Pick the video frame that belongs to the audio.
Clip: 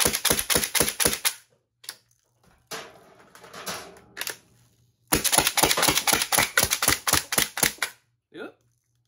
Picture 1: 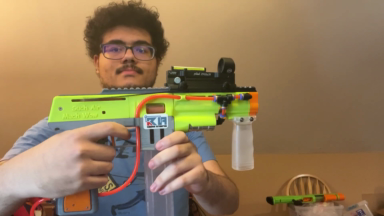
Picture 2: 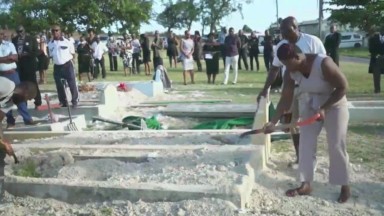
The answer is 1